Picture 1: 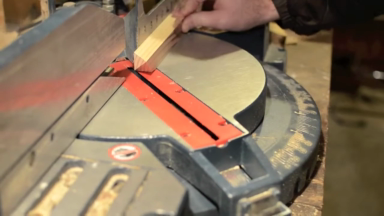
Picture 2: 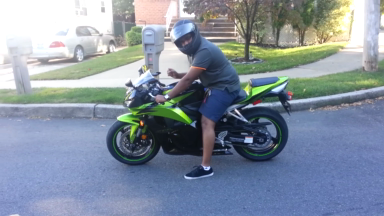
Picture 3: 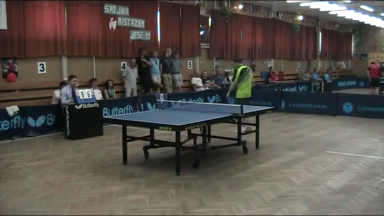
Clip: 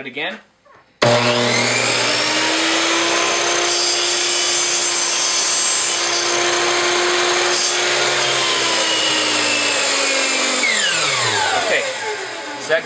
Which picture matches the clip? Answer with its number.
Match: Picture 1